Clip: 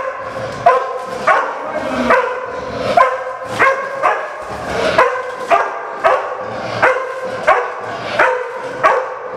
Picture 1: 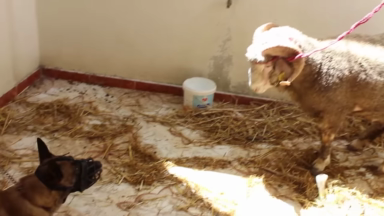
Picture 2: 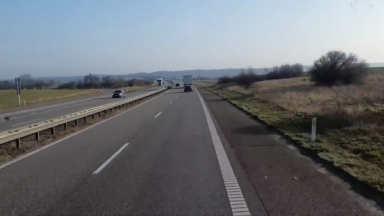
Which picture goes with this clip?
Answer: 1